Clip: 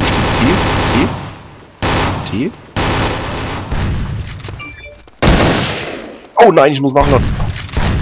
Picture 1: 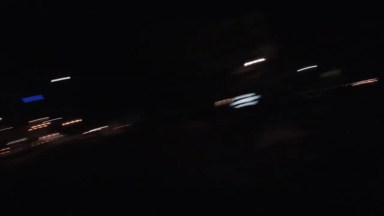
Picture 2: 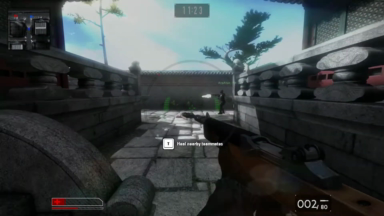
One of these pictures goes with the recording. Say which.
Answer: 2